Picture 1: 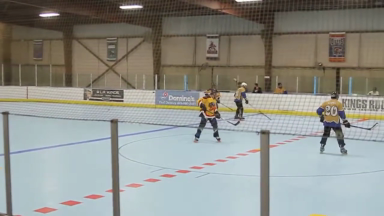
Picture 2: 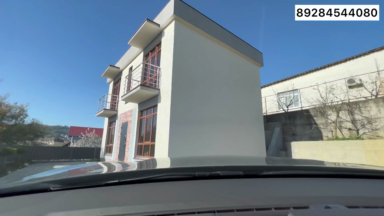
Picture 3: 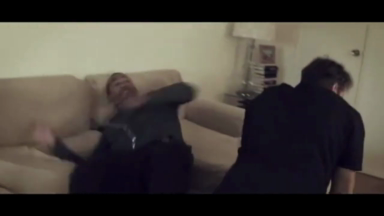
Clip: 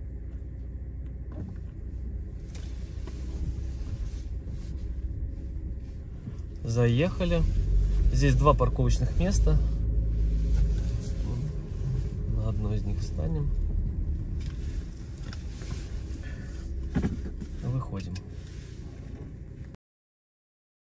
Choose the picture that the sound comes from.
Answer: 2